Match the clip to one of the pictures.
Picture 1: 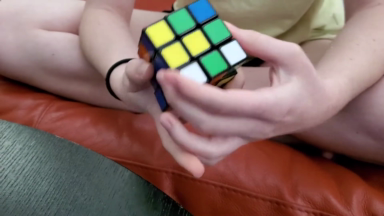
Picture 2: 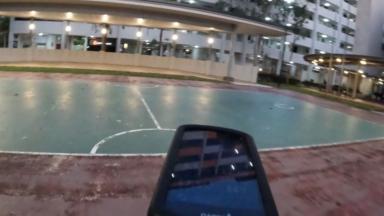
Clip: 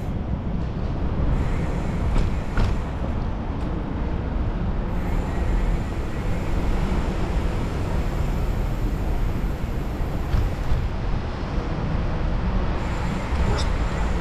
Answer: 2